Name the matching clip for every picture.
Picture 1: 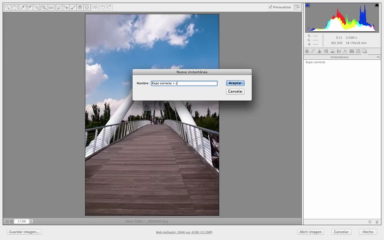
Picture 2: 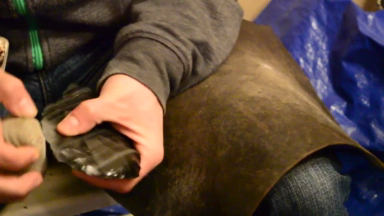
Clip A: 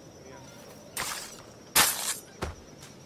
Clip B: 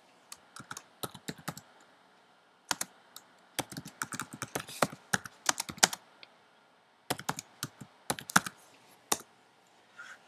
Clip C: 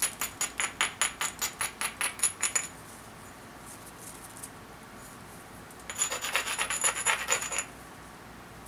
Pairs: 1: B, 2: C